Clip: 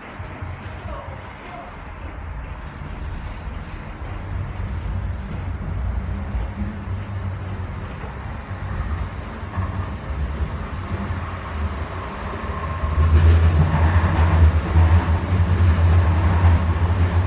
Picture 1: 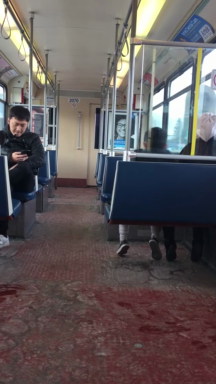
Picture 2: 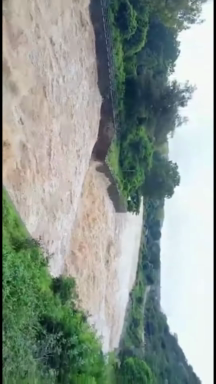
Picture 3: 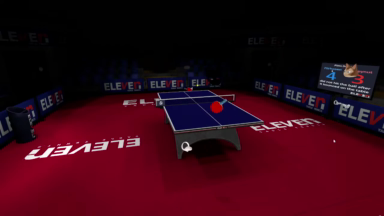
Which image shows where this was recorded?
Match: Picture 1